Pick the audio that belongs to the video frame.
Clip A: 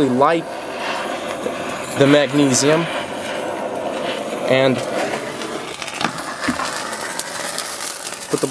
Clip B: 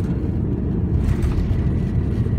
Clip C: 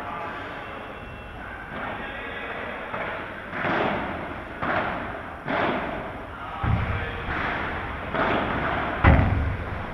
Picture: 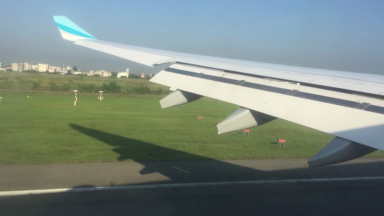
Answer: B